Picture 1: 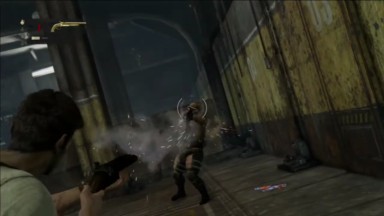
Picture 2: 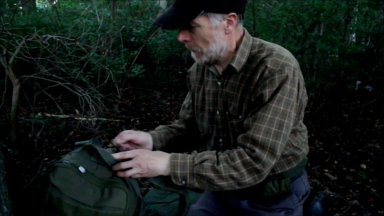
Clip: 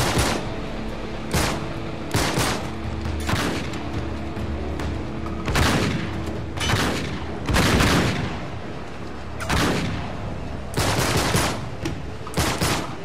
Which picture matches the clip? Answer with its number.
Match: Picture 1